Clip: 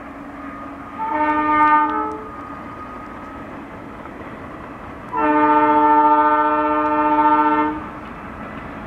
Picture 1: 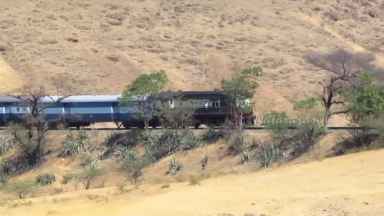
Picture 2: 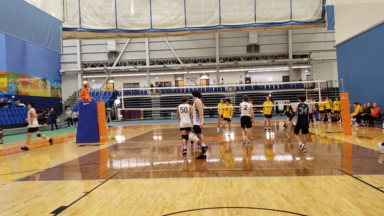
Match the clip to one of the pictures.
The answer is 1